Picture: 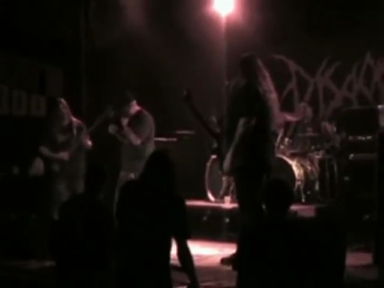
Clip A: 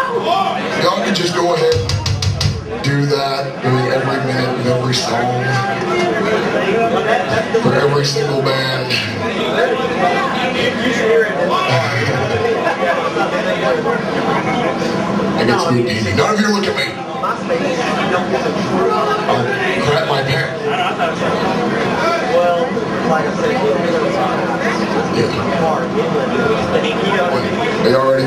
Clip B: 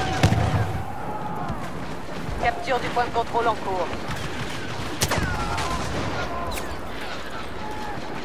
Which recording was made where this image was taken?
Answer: A